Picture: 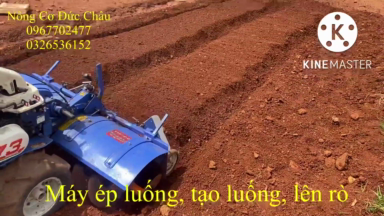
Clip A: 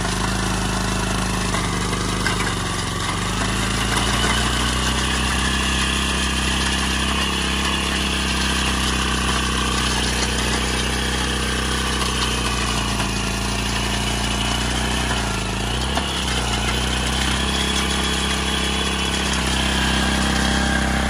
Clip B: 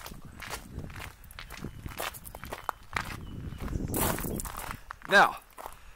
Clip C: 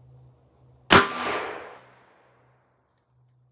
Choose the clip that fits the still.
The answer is A